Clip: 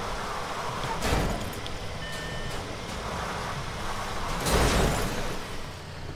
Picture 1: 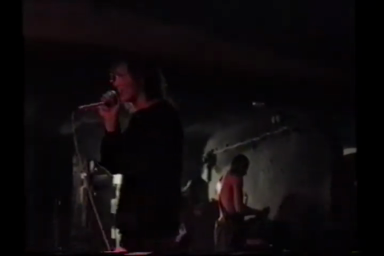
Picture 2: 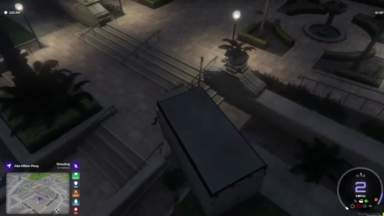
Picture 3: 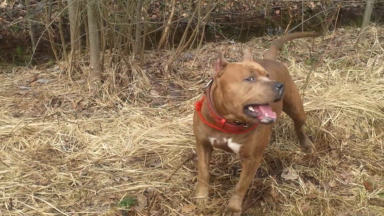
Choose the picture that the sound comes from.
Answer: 2